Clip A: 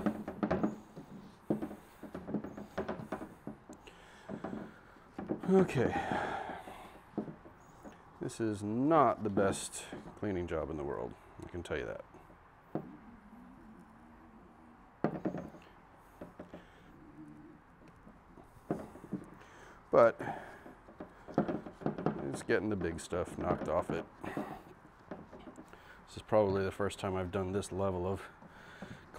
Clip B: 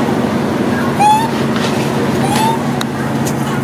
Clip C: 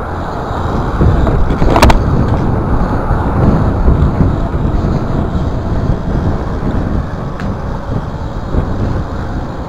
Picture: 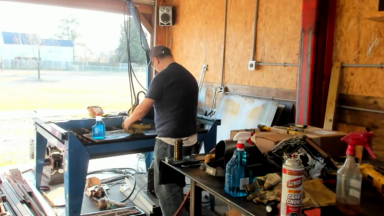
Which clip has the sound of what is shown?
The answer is A